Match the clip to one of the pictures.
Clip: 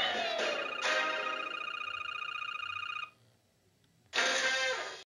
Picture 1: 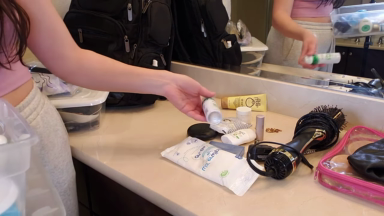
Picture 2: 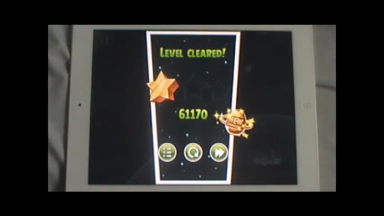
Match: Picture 2